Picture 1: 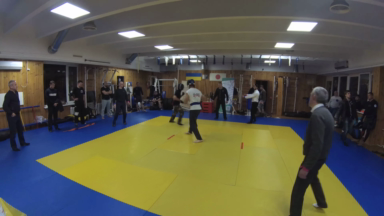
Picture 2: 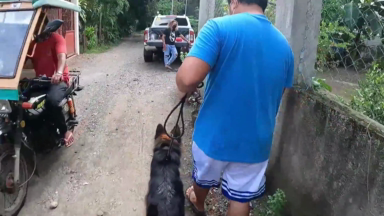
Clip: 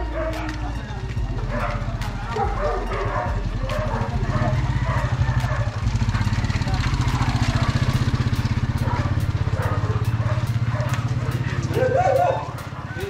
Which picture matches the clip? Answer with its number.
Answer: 2